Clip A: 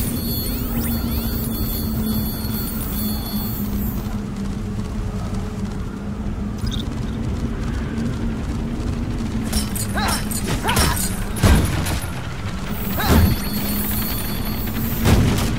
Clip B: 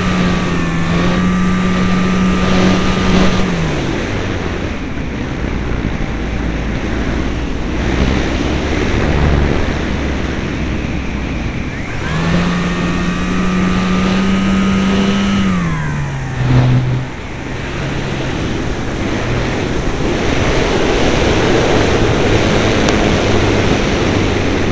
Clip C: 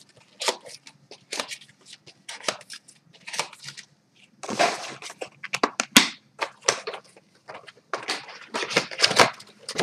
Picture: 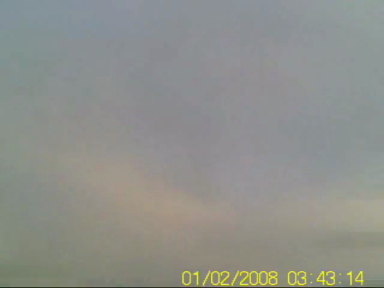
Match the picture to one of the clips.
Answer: B